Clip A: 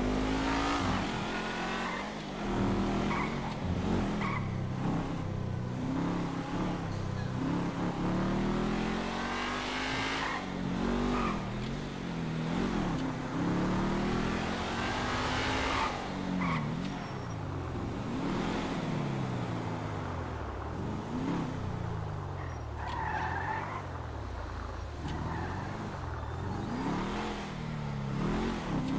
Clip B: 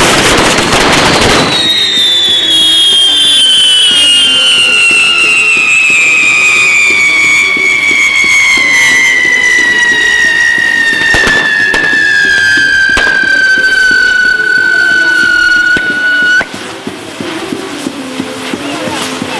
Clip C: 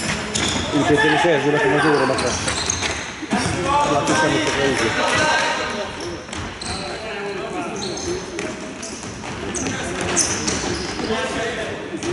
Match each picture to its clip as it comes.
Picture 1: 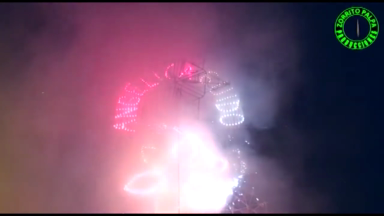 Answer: B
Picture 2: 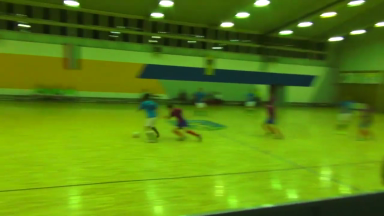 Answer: C